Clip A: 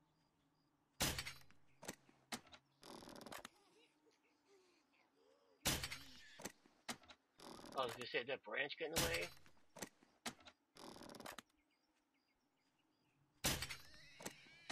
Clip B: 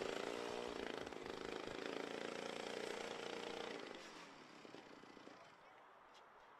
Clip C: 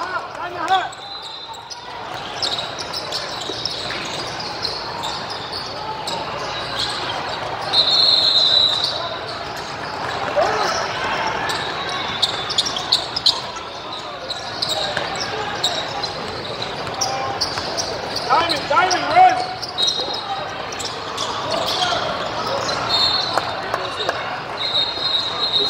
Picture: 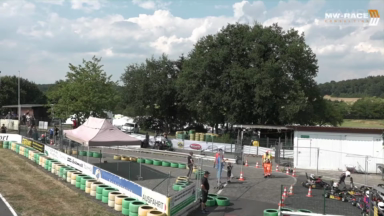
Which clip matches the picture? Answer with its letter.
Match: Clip B